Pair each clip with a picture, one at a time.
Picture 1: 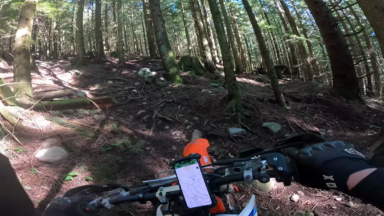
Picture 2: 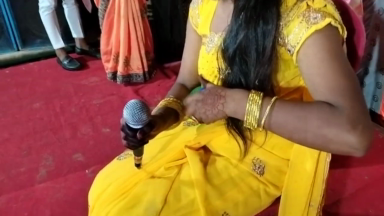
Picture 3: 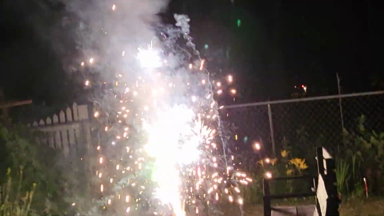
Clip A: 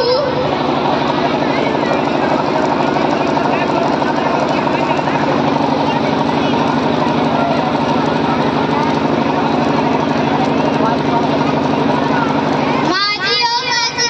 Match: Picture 2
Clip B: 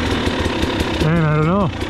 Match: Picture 1